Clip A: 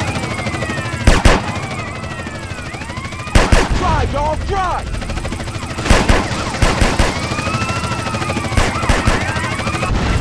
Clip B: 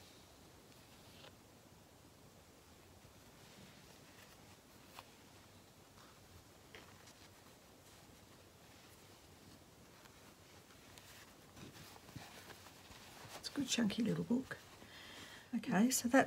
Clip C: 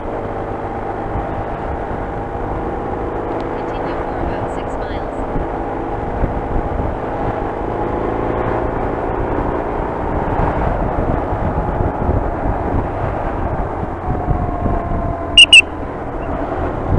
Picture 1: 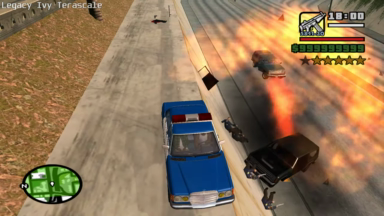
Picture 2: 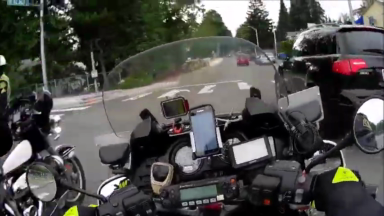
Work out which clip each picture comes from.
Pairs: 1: A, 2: C